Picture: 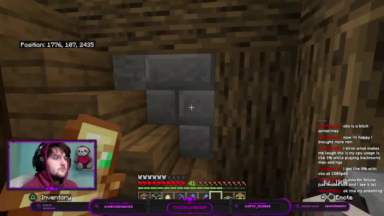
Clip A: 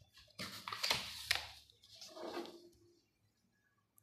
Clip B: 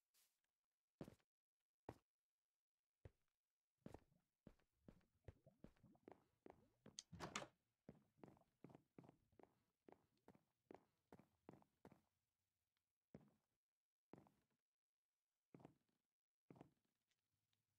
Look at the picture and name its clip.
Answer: B